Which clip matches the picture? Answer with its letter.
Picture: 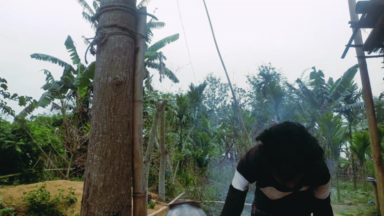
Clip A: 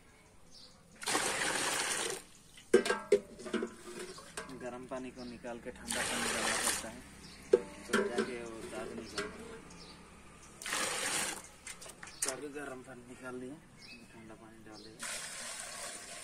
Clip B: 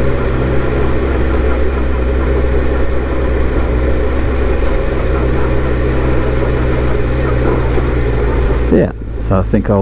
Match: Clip A